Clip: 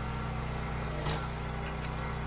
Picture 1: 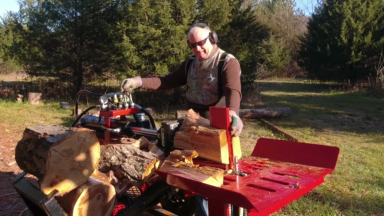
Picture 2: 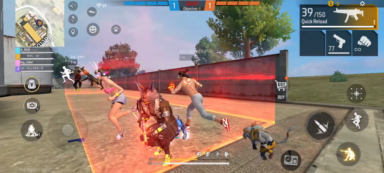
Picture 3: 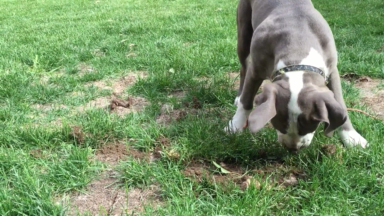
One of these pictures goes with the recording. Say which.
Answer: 1